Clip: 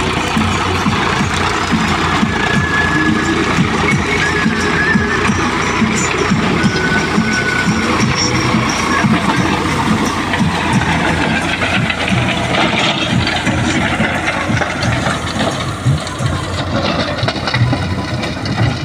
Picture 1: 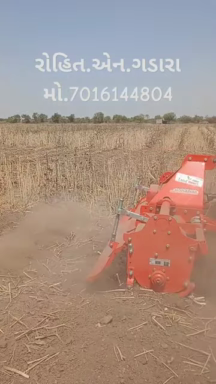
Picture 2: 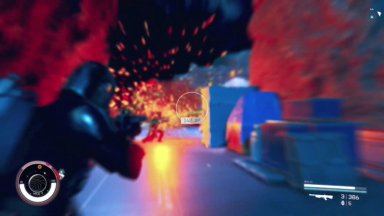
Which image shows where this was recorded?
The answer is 1